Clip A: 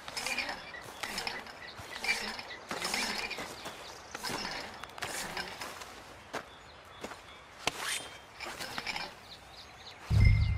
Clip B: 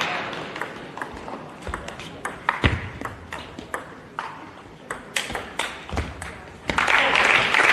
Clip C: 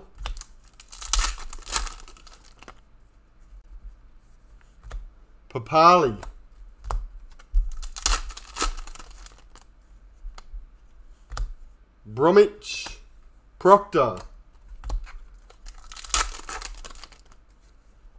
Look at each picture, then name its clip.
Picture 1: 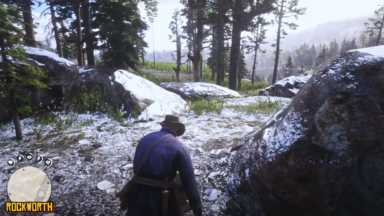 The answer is A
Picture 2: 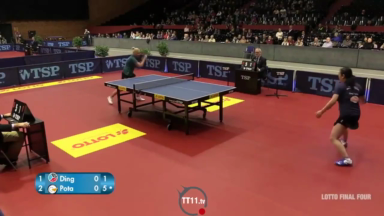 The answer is B